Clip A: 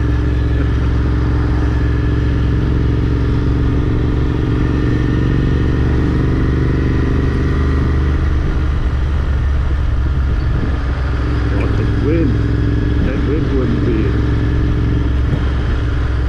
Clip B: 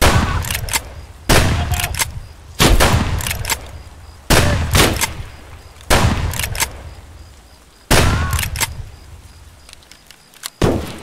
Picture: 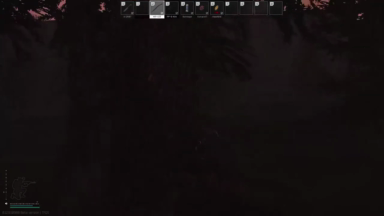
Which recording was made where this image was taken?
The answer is B